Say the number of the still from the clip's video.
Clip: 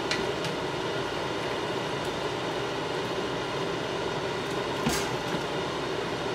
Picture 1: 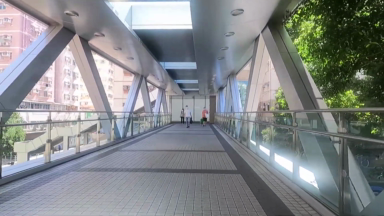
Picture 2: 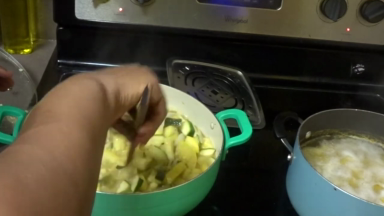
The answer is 2